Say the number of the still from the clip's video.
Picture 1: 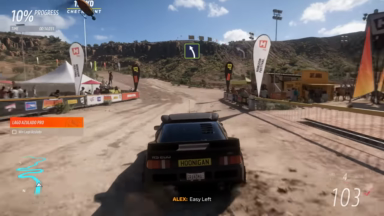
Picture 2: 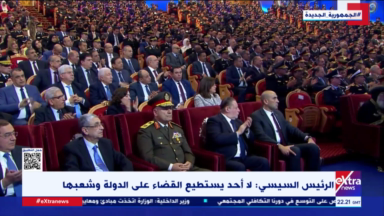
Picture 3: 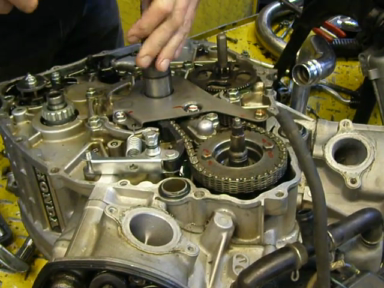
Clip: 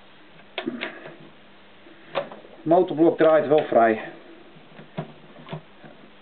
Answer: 3